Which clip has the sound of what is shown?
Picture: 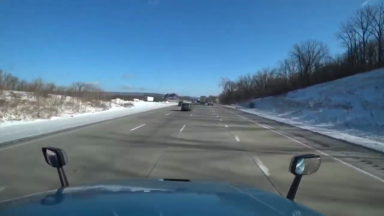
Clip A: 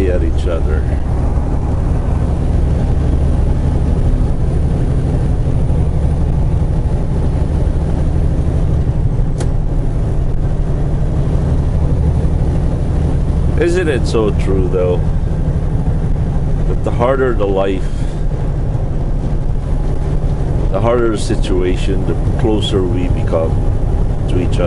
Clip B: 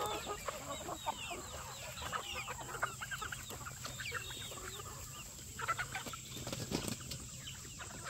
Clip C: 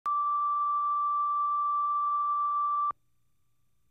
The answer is A